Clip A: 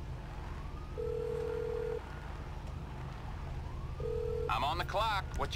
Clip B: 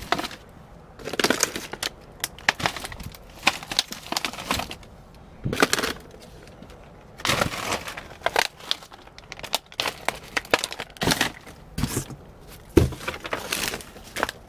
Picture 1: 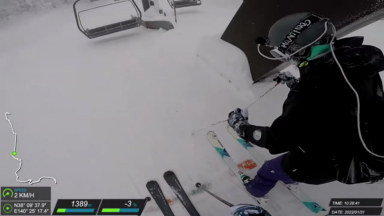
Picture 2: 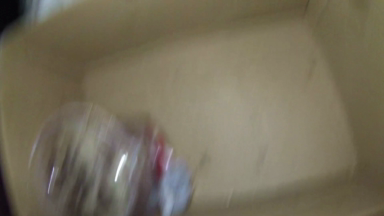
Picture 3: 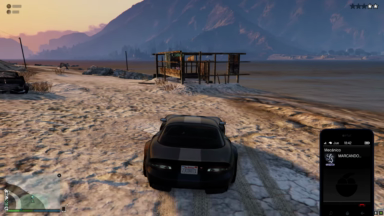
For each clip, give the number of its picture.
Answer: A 3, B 2